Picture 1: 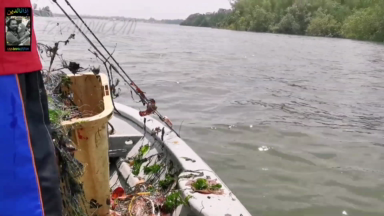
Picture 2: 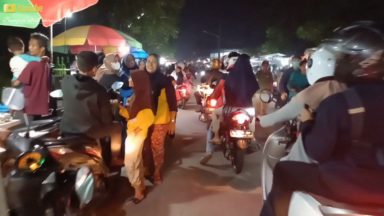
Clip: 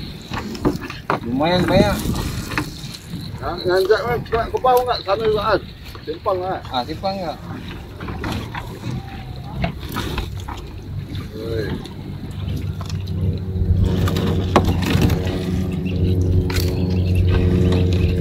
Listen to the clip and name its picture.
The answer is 1